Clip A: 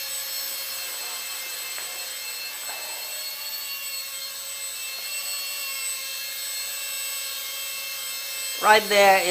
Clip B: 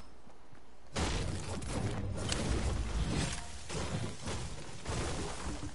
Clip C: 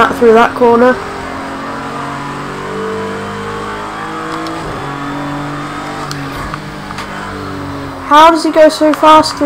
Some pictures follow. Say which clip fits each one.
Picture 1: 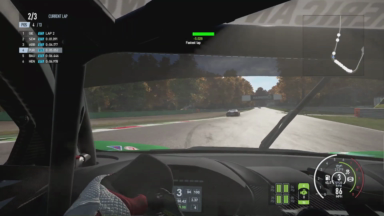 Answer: C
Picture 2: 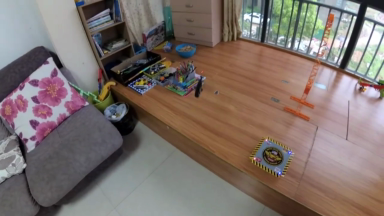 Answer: A